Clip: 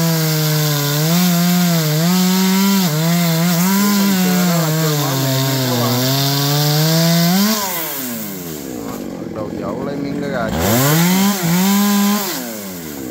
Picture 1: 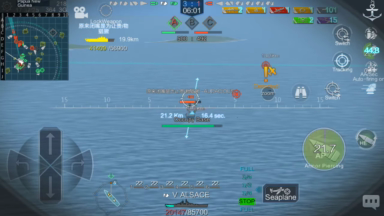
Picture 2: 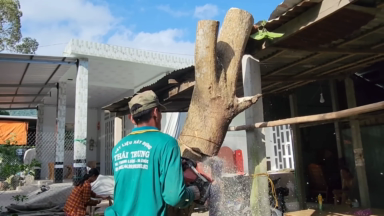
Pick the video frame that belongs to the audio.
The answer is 2